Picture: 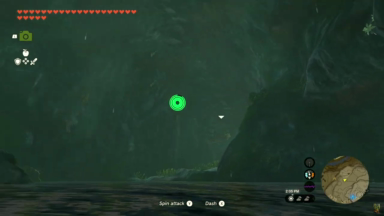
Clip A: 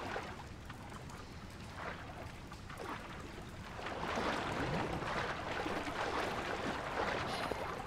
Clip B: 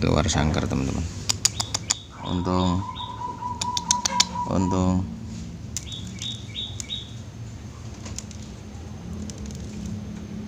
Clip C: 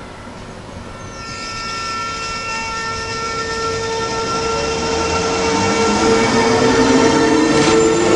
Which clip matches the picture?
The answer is A